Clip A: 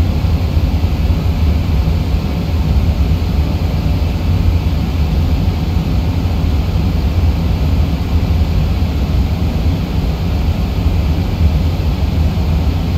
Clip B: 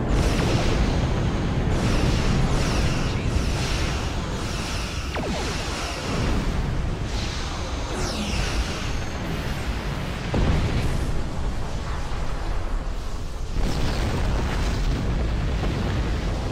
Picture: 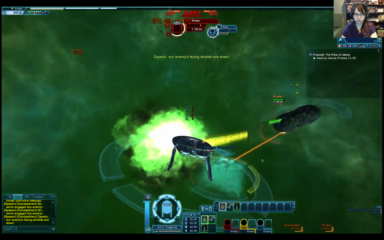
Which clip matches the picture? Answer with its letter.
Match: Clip B